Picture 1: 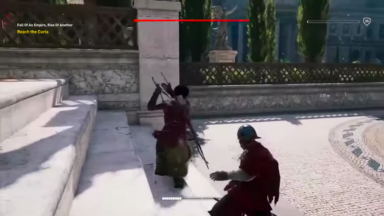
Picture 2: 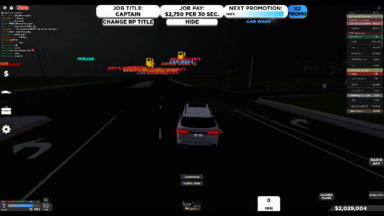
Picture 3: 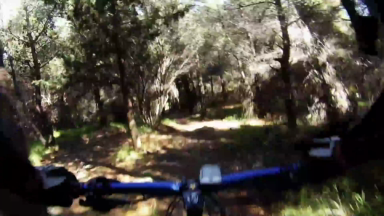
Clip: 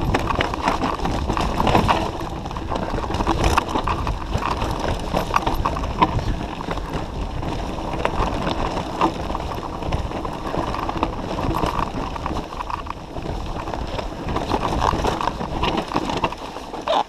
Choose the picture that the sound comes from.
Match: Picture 3